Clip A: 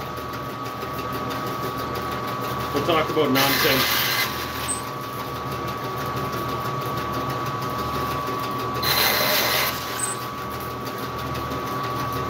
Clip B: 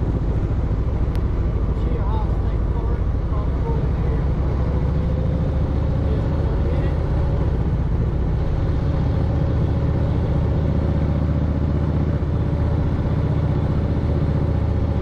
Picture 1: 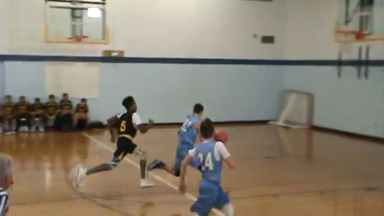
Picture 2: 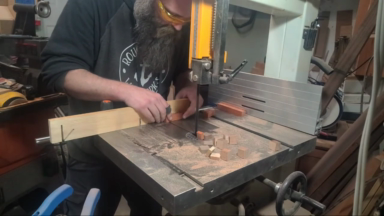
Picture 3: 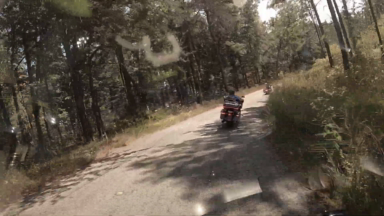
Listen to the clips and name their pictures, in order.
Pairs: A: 2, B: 3